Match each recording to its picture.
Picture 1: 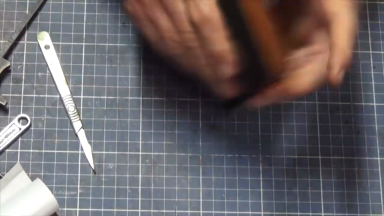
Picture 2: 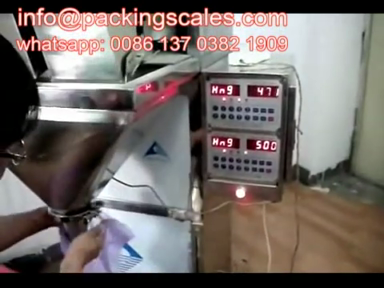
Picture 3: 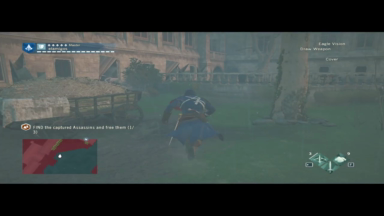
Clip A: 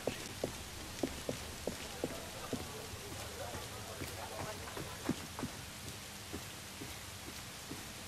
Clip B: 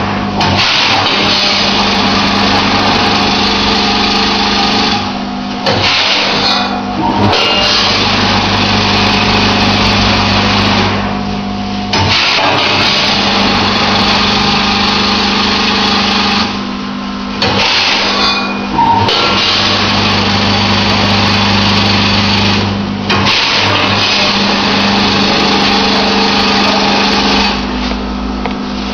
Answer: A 3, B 2